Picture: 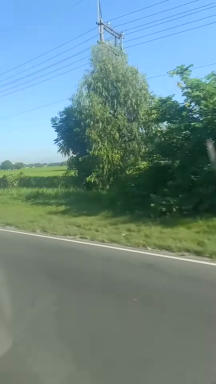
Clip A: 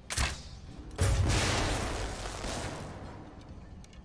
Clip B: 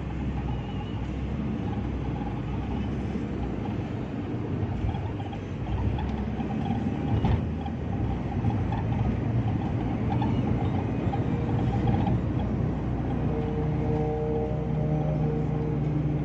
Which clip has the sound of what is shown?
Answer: B